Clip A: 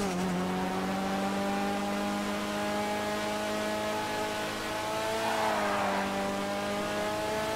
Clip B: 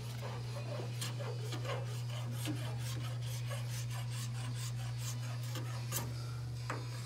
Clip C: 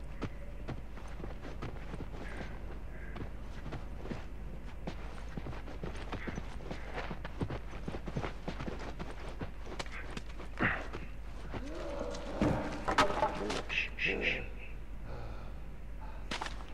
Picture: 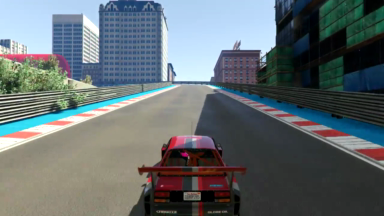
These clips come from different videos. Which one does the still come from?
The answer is A